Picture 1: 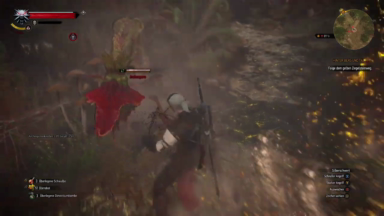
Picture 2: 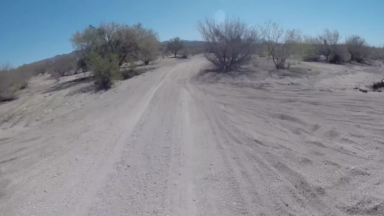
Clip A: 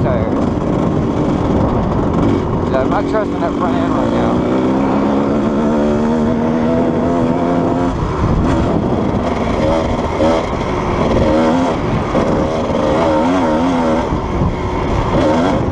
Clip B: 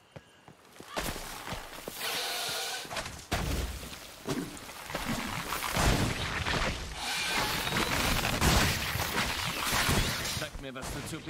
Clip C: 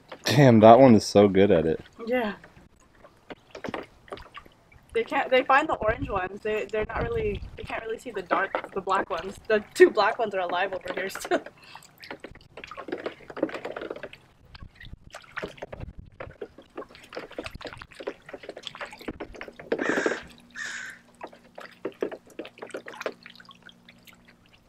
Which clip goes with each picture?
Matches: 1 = B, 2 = A